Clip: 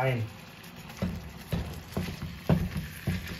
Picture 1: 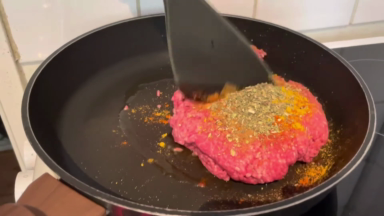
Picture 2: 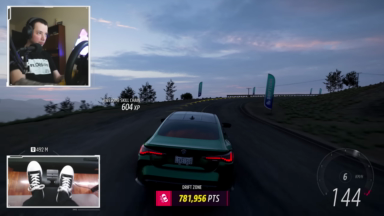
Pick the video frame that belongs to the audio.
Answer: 1